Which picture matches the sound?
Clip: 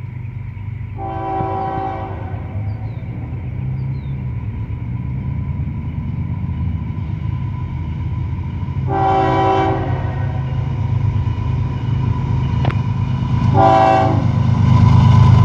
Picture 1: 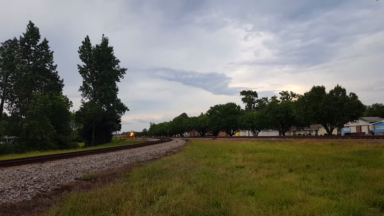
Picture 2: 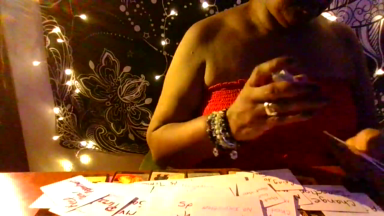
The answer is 1